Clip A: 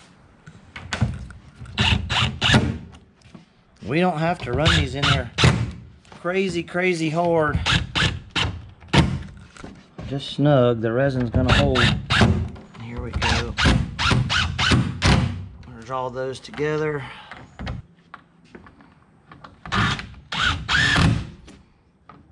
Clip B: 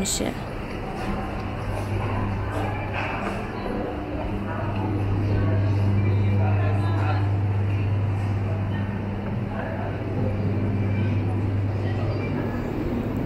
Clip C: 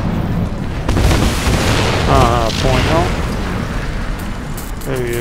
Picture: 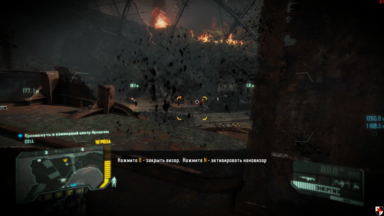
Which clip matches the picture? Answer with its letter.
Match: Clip C